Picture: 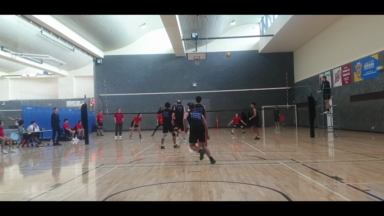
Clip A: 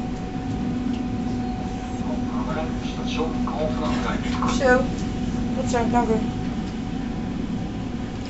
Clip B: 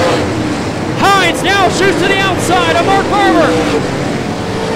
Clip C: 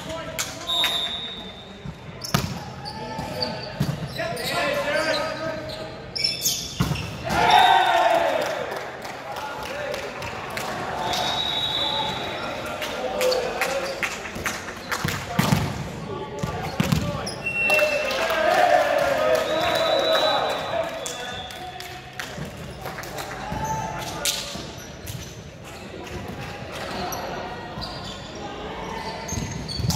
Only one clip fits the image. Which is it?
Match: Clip C